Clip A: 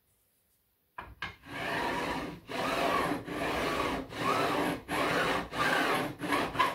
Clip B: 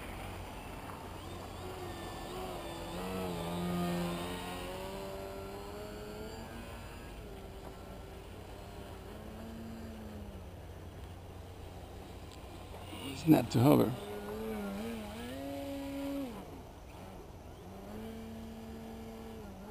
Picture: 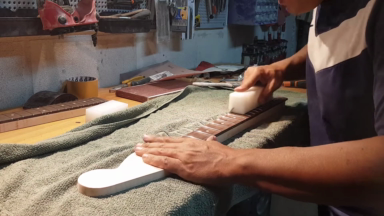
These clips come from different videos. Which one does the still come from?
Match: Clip A